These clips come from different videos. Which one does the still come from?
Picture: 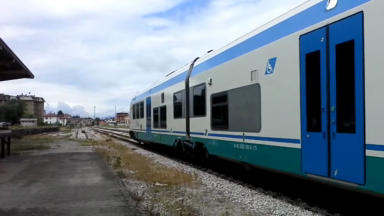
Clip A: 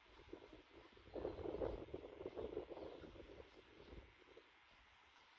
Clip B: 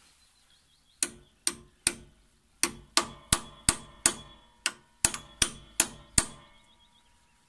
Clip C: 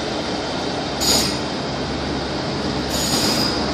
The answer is C